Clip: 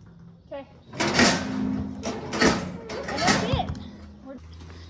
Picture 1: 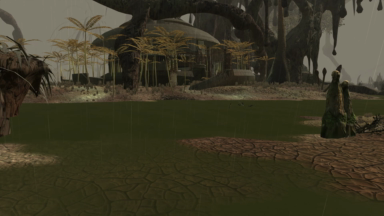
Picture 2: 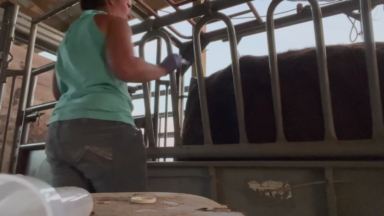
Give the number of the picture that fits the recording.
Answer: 2